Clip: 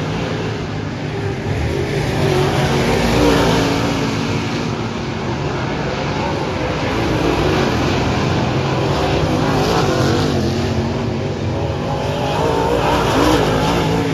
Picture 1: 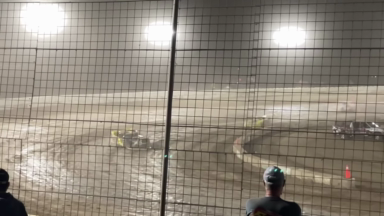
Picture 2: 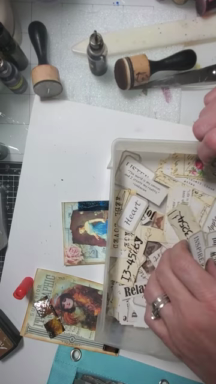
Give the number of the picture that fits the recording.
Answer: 1